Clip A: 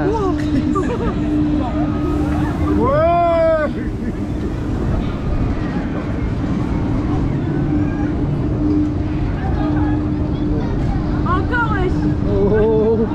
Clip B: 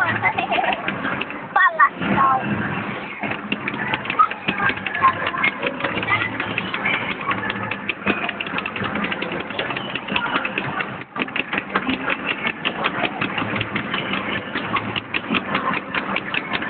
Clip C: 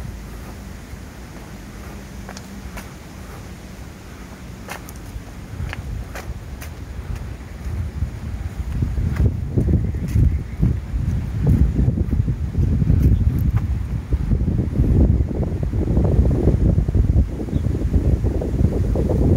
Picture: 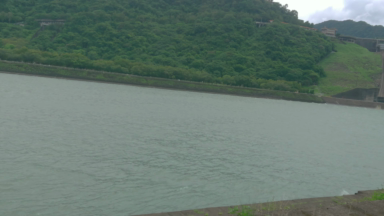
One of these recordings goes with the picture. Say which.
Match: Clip C